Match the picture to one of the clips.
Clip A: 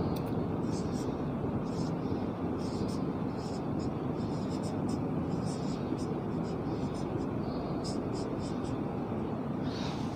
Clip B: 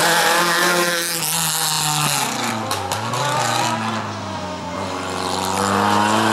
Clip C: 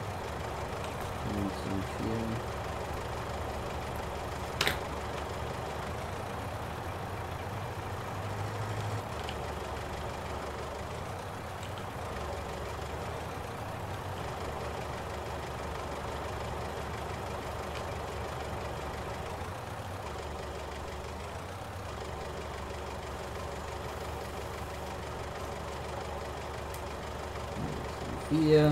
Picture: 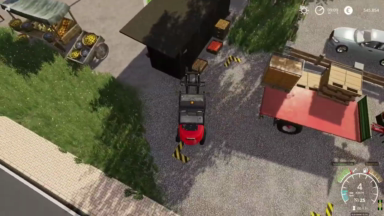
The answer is C